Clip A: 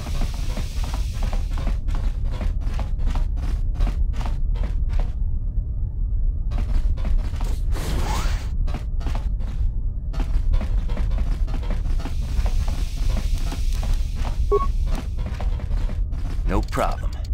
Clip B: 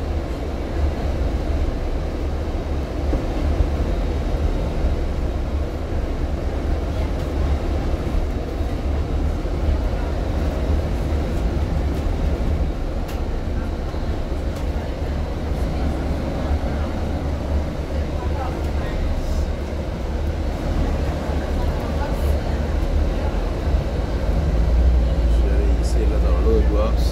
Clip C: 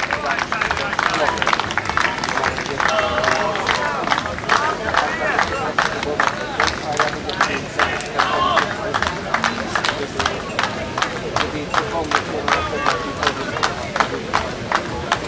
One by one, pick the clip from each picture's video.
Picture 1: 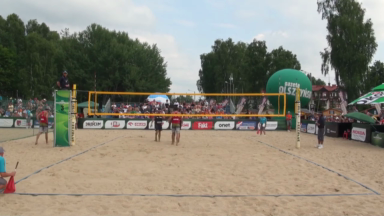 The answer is C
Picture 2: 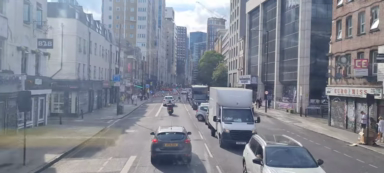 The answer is B